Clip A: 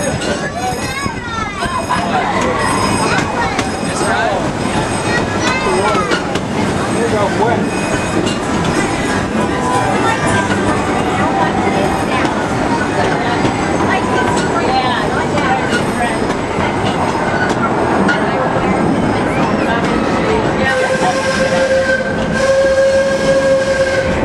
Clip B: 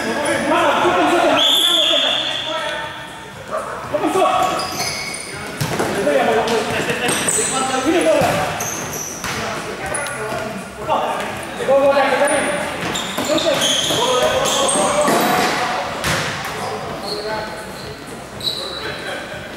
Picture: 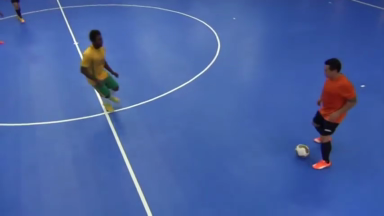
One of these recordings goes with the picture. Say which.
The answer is B